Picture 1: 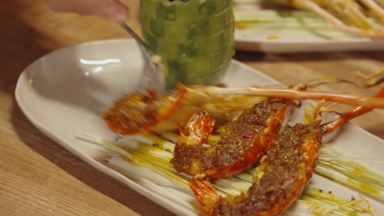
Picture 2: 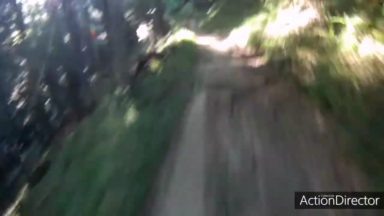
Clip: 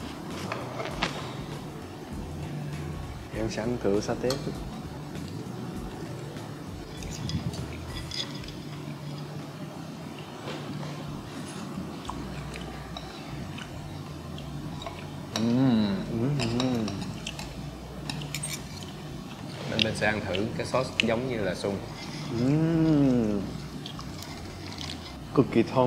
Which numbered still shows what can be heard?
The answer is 1